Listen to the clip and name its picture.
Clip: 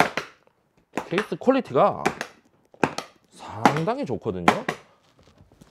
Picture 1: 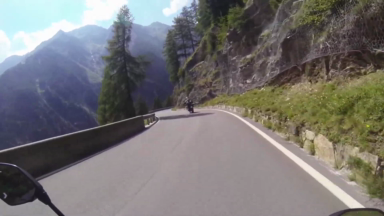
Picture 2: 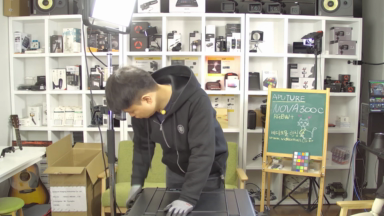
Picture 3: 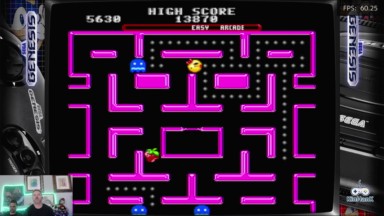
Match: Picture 2